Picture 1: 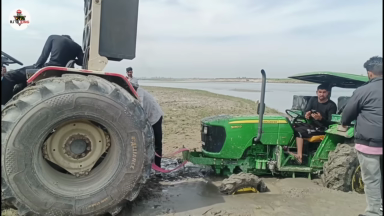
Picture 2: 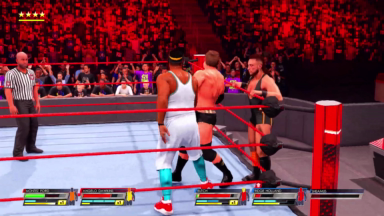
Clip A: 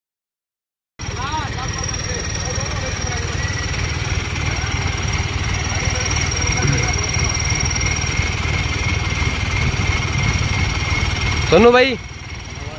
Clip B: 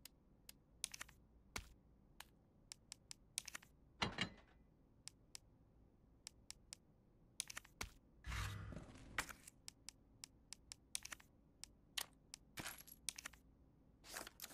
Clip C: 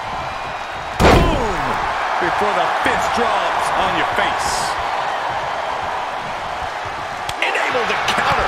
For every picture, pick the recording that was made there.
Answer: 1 A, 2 C